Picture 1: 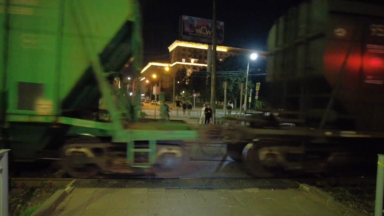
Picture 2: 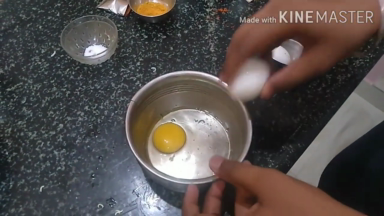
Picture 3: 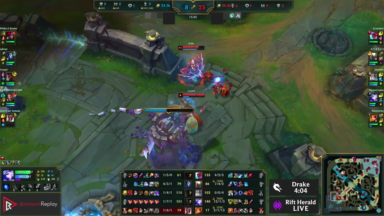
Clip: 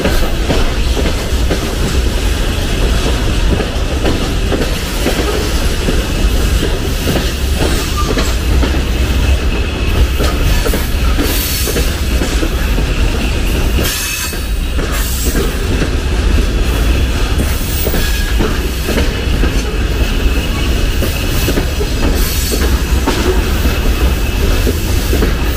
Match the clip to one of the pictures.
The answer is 1